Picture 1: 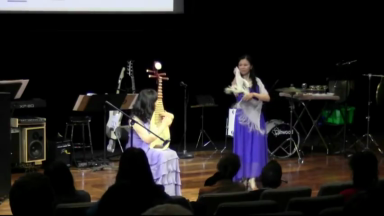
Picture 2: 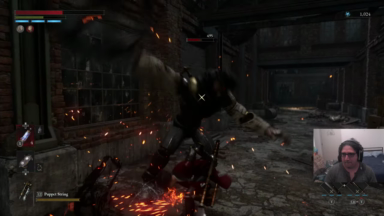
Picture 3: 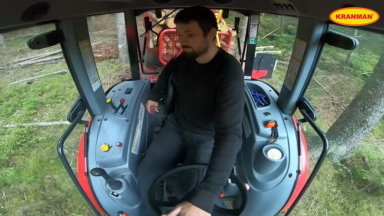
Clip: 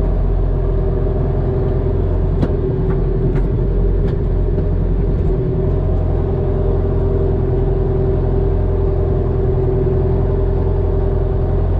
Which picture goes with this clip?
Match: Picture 3